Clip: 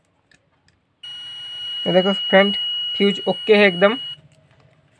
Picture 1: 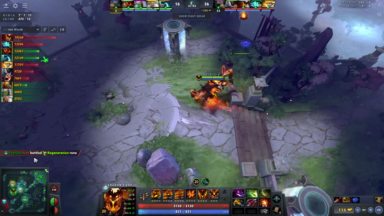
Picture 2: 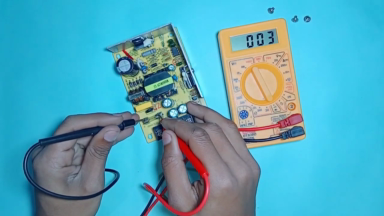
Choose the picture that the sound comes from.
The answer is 2